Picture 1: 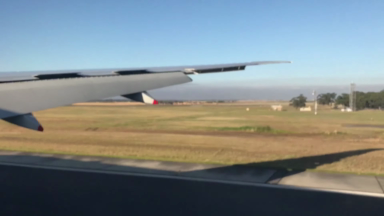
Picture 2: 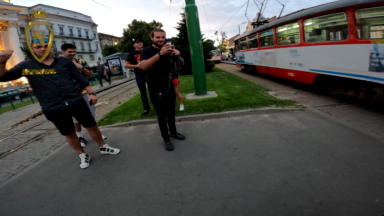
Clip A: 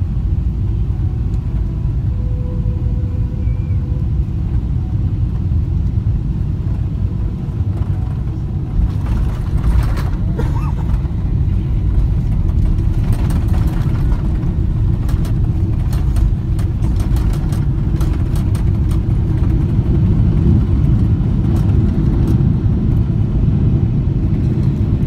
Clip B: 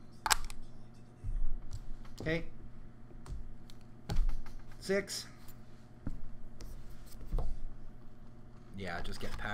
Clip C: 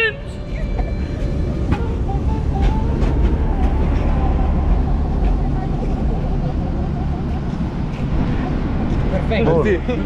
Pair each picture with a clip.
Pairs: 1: A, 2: C